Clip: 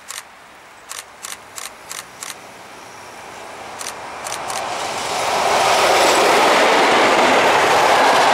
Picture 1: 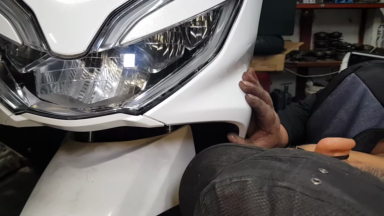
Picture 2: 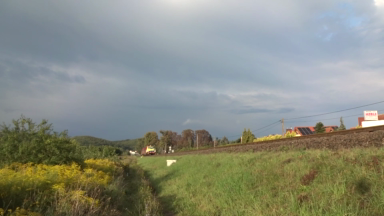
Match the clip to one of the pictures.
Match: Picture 2